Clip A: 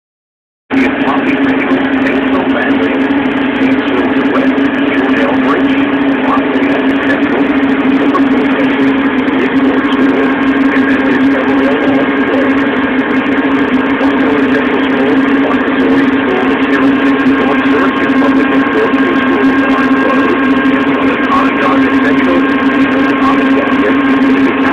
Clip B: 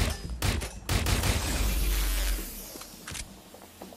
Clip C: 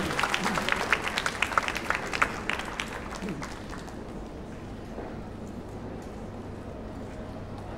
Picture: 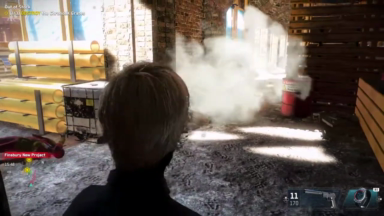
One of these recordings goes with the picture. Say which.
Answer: B